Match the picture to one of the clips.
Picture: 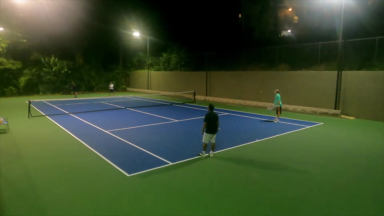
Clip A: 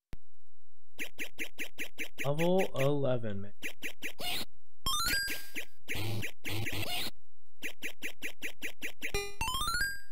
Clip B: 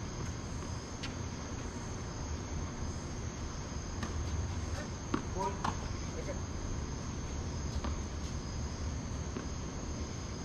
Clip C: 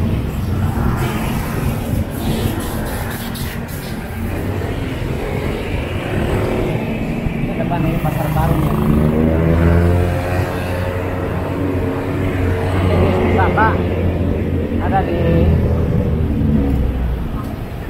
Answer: B